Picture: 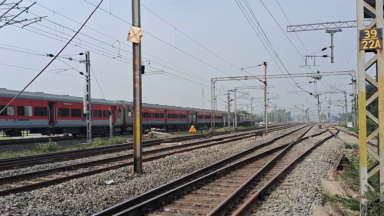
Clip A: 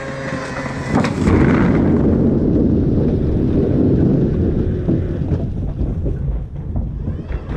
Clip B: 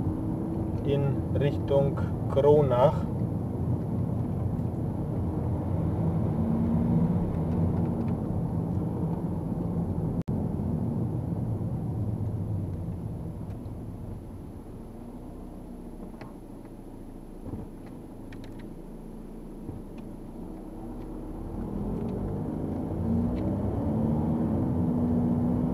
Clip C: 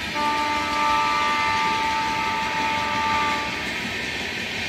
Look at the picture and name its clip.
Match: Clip C